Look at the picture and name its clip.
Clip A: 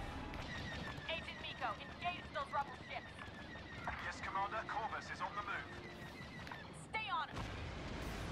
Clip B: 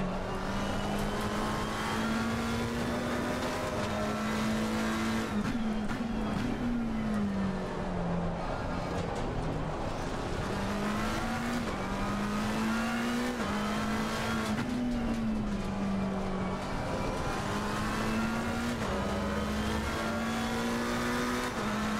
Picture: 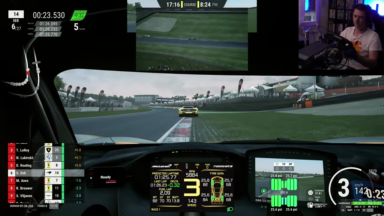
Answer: B